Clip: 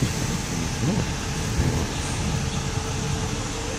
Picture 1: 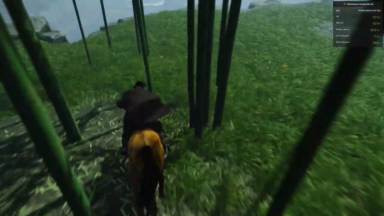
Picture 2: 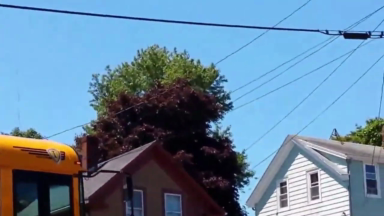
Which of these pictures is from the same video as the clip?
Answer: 2